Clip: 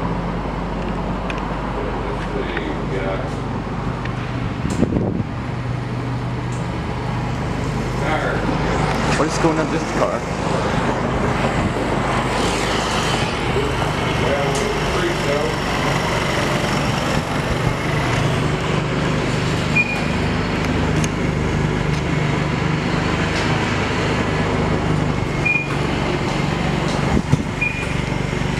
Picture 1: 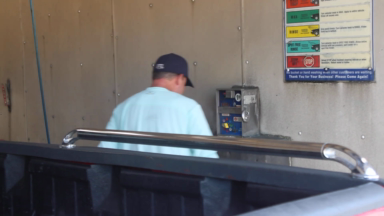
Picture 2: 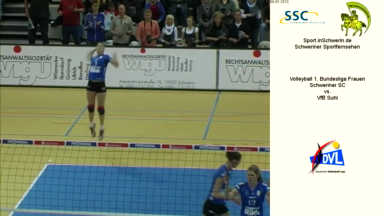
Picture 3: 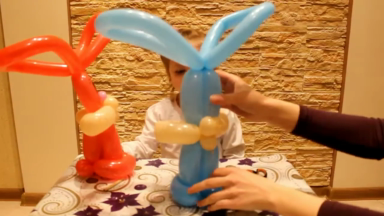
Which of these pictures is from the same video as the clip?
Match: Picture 1